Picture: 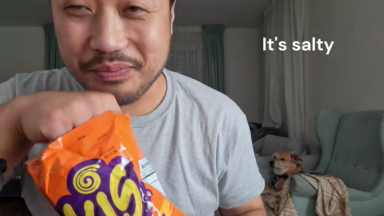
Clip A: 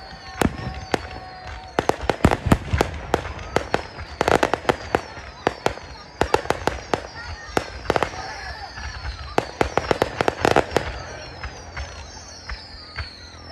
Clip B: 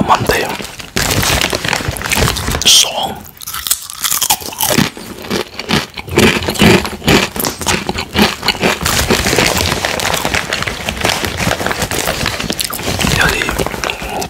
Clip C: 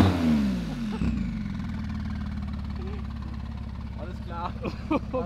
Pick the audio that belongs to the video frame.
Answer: B